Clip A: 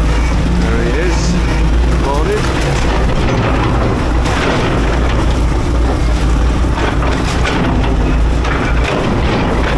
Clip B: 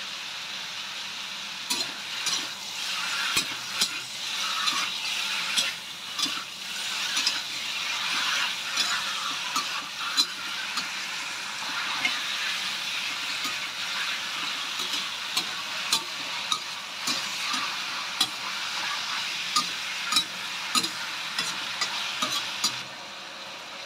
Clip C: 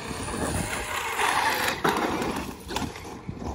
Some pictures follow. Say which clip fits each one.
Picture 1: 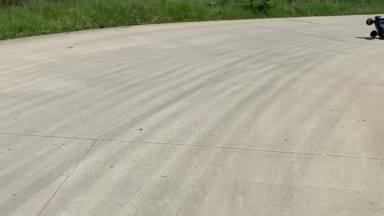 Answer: C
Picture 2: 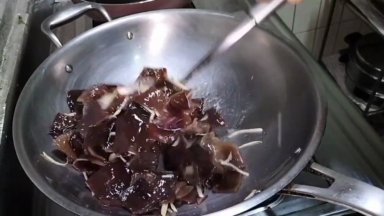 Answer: B